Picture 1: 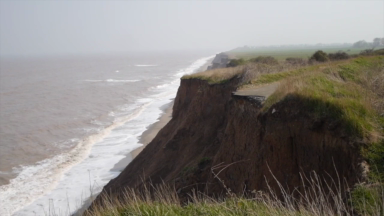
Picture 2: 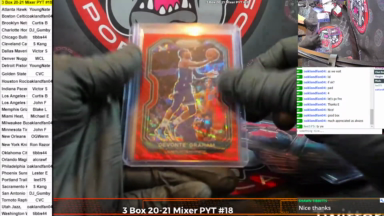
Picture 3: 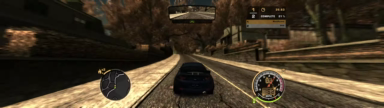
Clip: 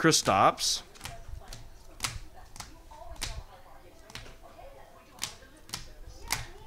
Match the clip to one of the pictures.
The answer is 2